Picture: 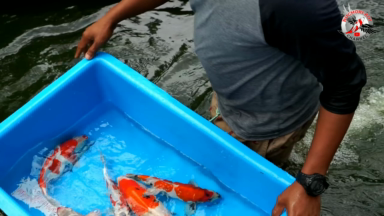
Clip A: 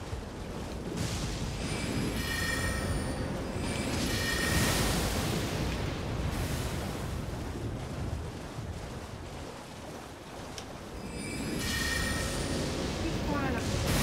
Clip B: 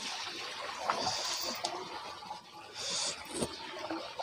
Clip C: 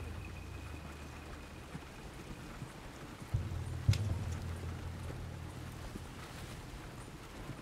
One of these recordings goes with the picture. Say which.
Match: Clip B